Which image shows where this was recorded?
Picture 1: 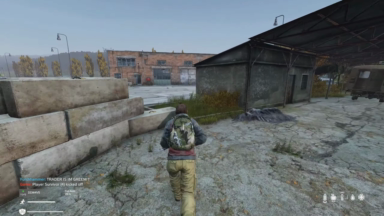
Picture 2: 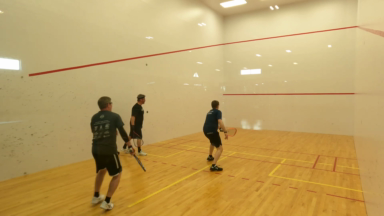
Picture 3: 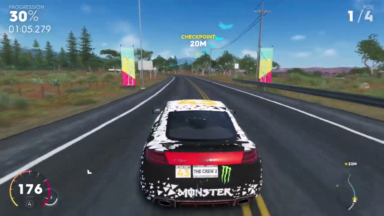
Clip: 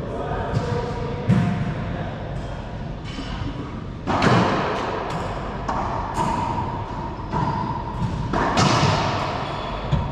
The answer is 2